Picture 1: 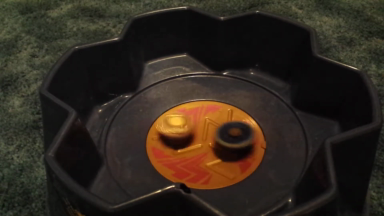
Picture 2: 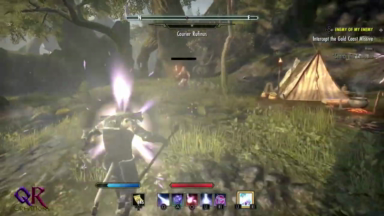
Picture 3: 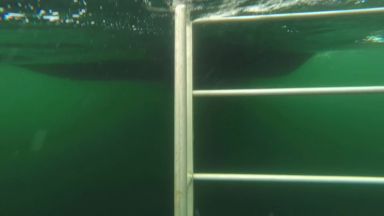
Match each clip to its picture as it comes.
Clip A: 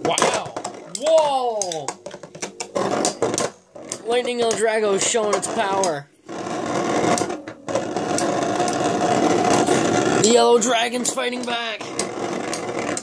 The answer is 1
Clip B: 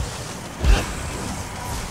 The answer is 2